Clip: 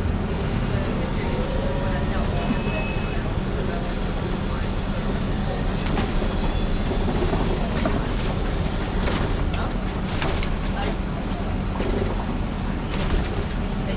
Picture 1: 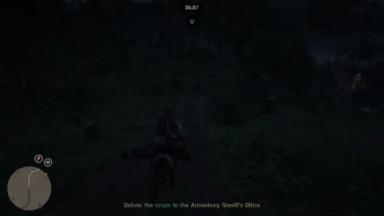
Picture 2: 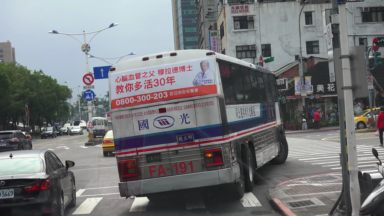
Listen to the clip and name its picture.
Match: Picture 2